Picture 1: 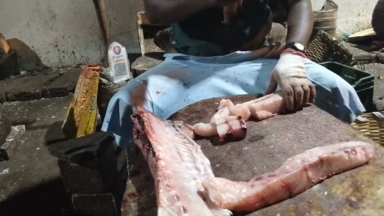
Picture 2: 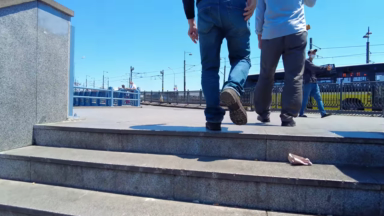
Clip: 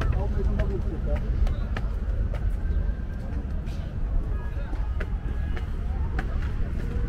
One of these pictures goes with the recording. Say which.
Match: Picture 2